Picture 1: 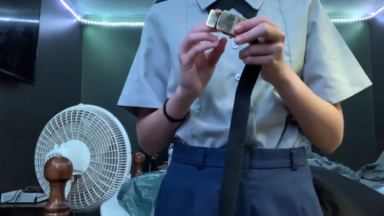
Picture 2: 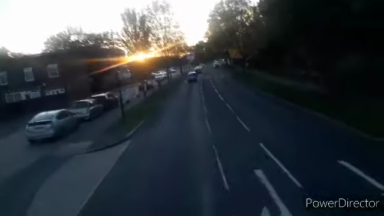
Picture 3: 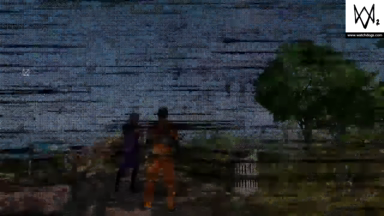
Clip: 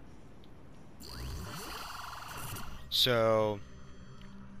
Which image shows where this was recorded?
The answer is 3